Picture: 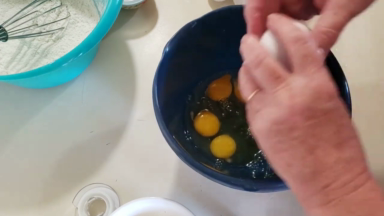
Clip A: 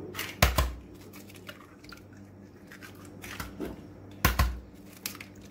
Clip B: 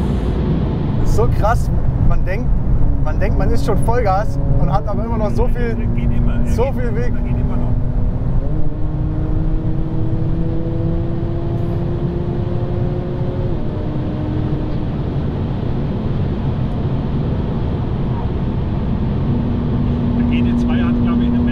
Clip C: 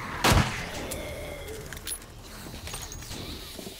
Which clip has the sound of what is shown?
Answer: A